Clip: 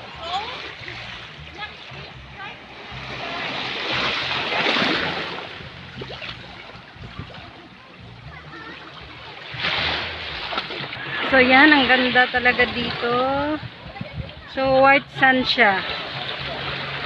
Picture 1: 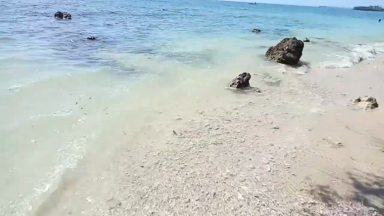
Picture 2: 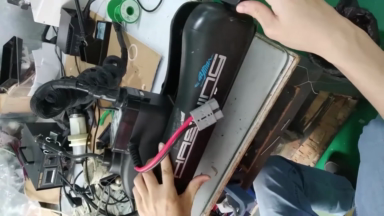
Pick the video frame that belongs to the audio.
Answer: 1